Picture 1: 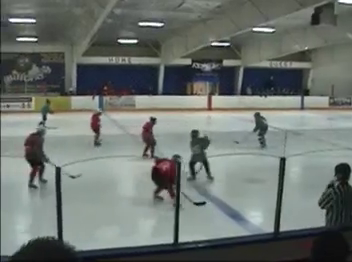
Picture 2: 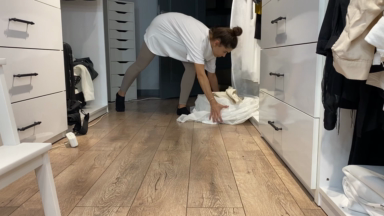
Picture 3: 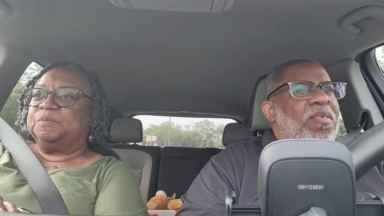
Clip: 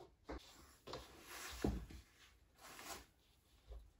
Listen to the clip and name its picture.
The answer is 2